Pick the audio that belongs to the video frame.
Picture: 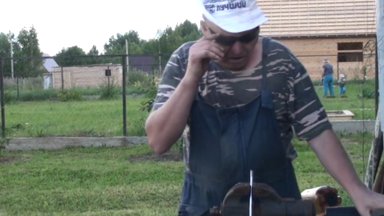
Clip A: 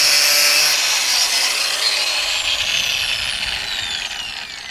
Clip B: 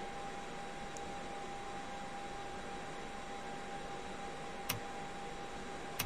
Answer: A